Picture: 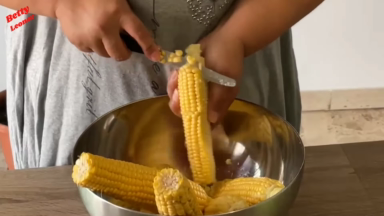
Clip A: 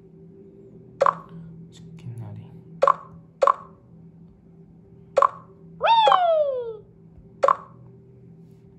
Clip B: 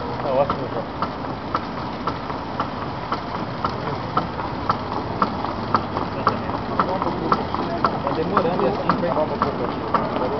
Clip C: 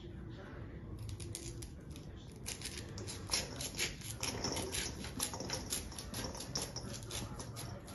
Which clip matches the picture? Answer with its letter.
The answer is C